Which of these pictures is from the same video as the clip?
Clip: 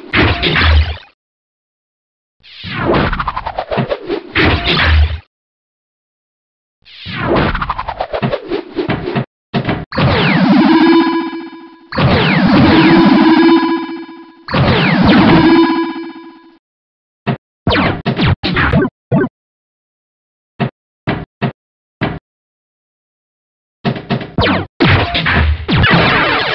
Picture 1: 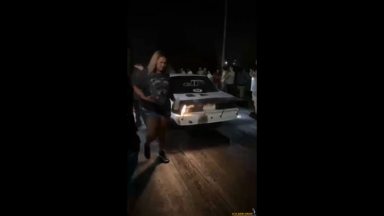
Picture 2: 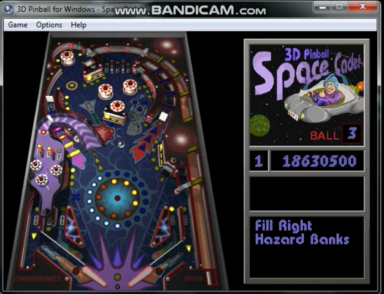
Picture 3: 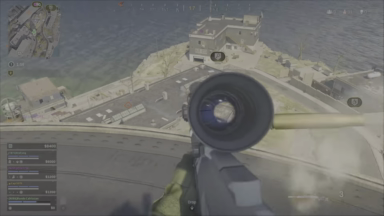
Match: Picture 2